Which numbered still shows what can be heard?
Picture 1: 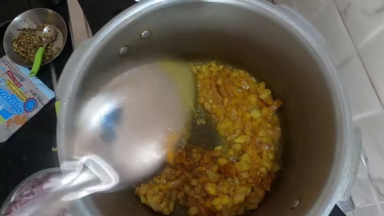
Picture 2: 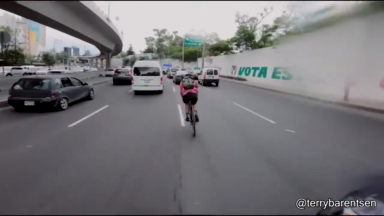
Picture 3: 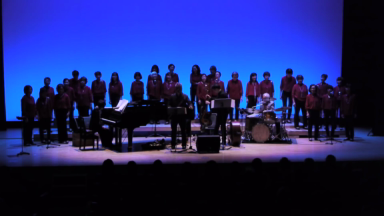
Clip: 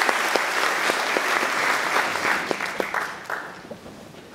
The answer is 3